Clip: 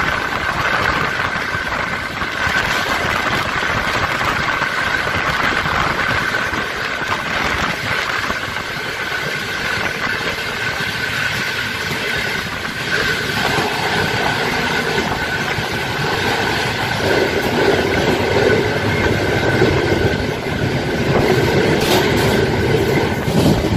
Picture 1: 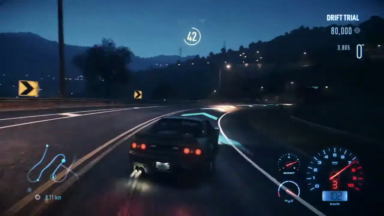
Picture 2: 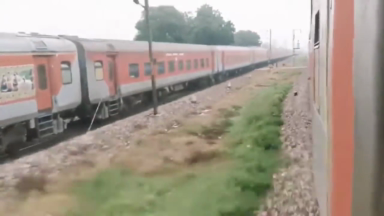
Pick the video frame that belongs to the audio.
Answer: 2